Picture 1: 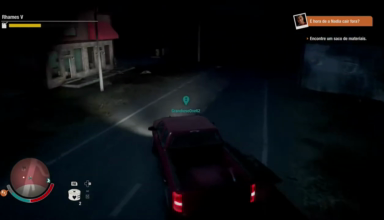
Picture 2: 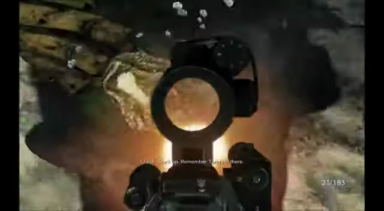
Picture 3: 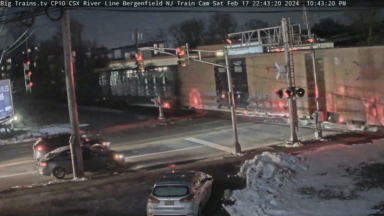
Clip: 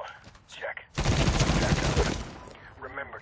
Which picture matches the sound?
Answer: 2